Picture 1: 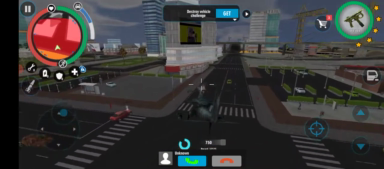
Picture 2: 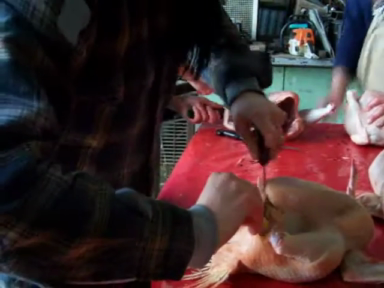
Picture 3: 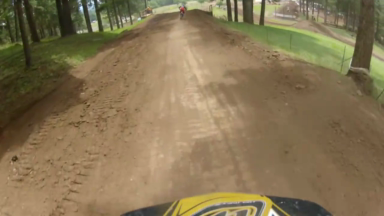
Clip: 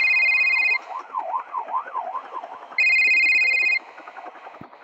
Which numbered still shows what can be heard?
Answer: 1